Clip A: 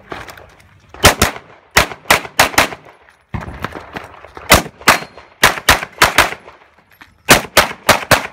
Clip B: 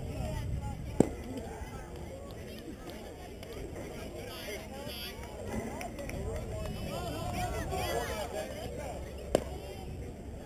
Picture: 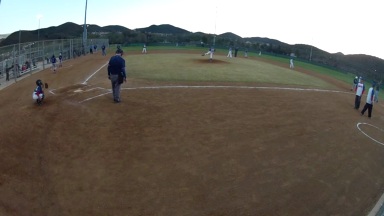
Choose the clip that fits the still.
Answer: B